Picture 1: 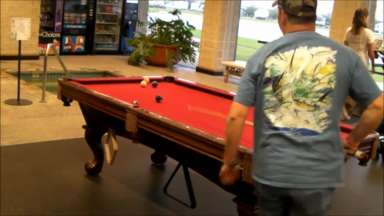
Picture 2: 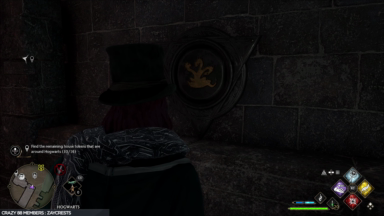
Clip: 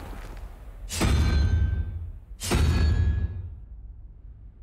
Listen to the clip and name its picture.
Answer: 2